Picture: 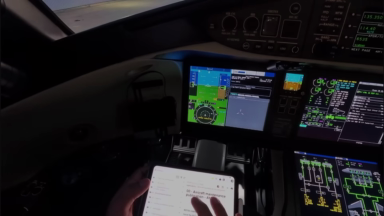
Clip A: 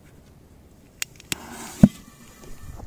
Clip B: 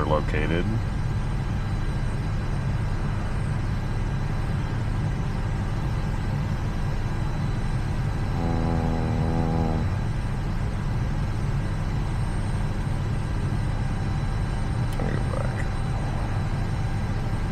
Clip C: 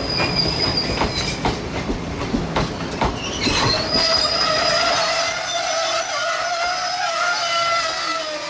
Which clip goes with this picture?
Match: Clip B